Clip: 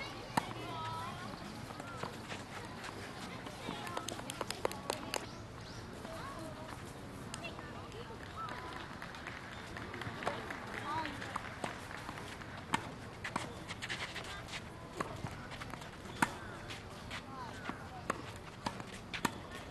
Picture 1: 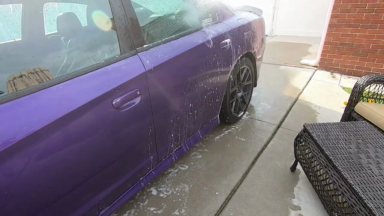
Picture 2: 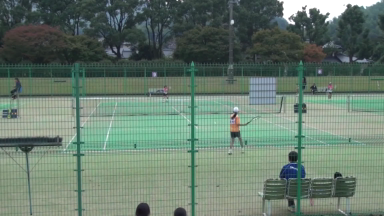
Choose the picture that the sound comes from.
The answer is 2